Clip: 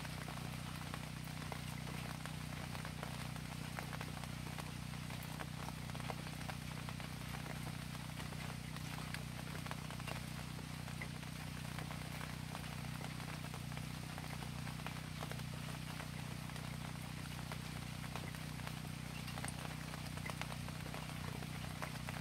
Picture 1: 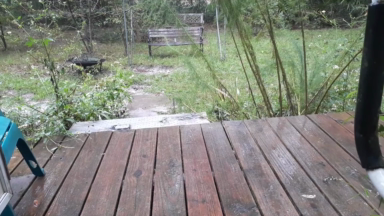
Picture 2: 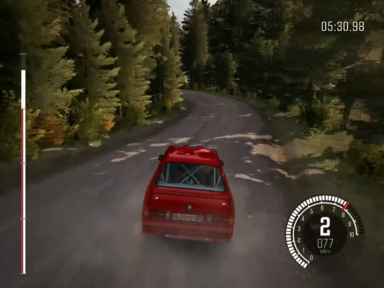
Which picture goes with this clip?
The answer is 1